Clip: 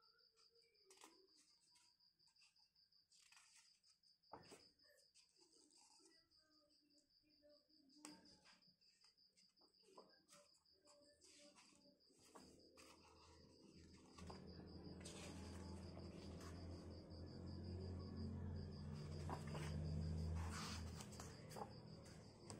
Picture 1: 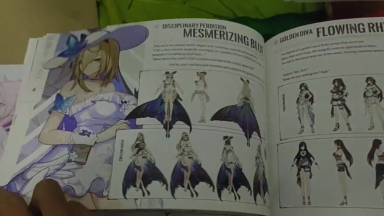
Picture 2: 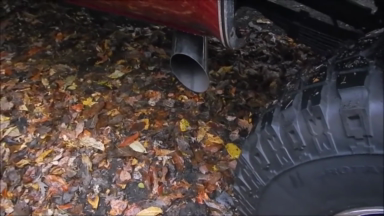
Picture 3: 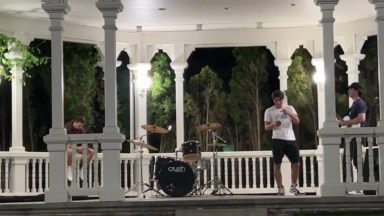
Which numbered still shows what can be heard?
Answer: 1